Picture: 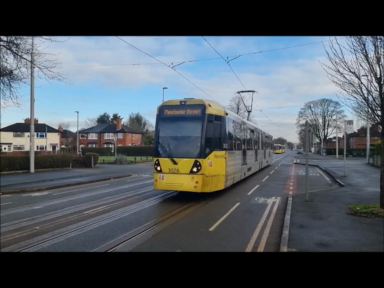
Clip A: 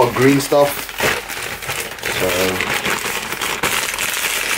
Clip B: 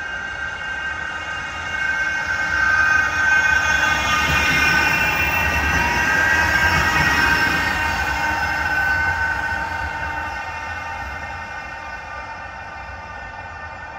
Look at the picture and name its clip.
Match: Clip B